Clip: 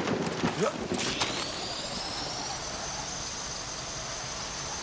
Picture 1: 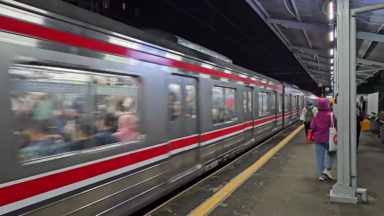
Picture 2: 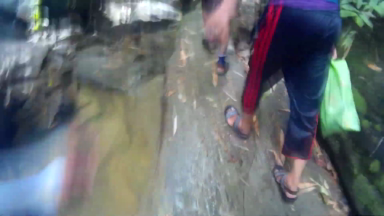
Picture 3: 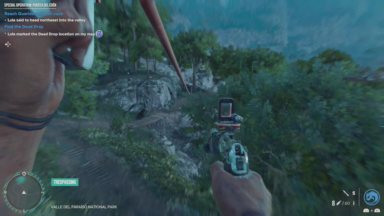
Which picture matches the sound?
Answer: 3